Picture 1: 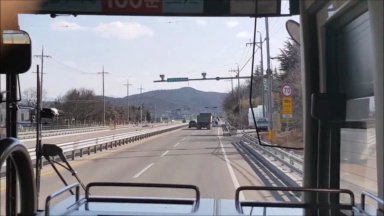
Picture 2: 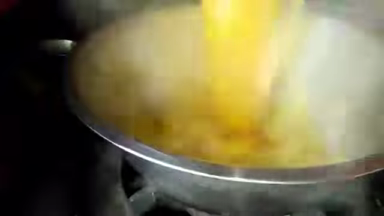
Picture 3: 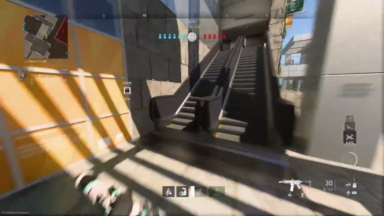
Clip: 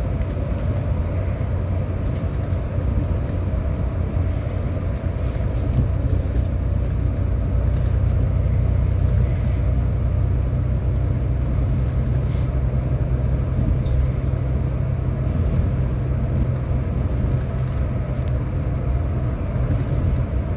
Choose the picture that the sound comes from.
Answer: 1